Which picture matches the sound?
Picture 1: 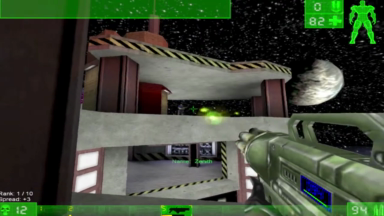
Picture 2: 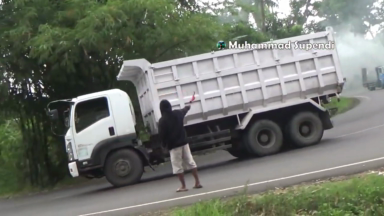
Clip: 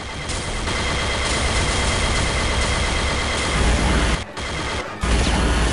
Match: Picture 1